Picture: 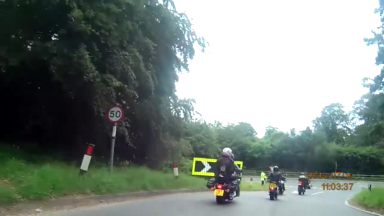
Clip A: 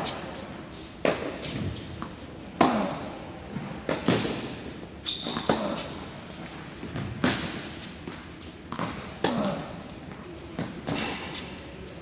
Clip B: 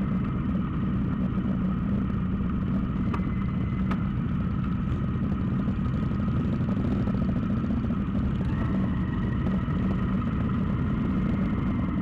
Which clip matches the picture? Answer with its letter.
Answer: B